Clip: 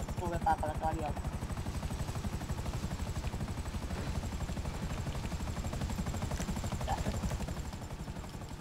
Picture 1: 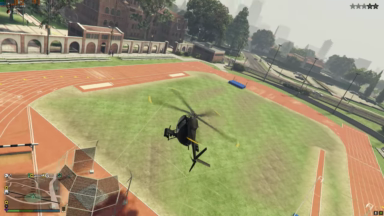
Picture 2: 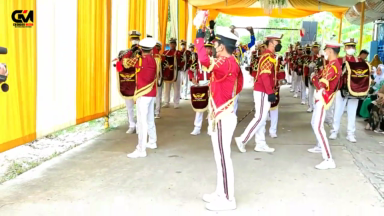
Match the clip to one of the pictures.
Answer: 1